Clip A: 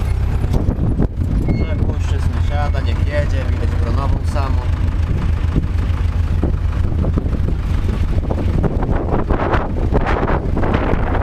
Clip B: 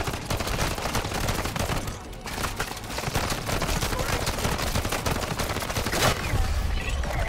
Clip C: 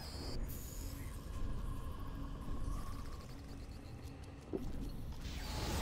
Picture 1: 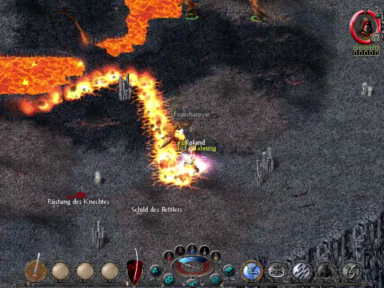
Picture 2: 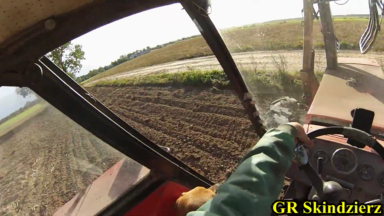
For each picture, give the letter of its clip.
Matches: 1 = C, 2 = A